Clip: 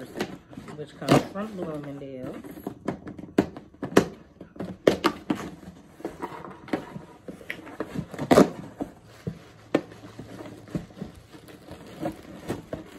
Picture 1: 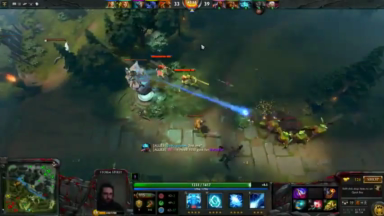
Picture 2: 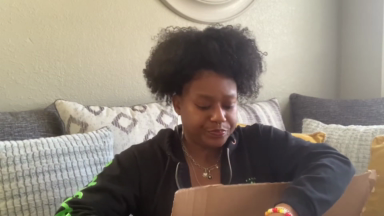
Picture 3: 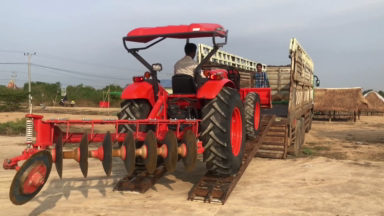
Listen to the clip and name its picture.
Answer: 2